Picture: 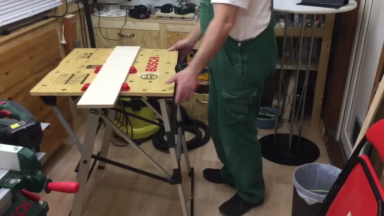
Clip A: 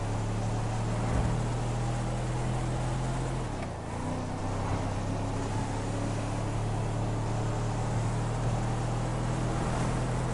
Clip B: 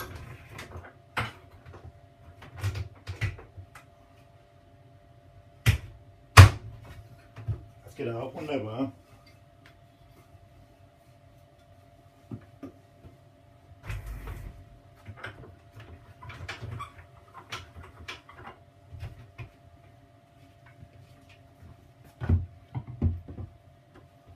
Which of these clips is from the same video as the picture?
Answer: B